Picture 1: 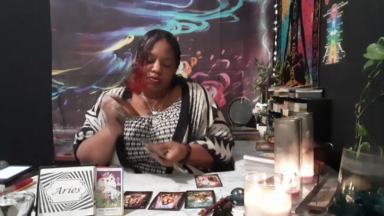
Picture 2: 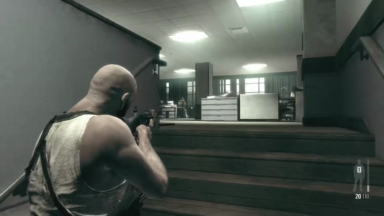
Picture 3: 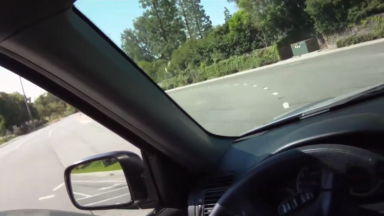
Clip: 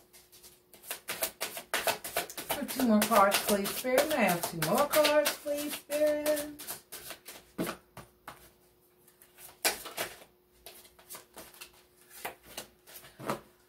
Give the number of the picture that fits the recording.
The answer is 1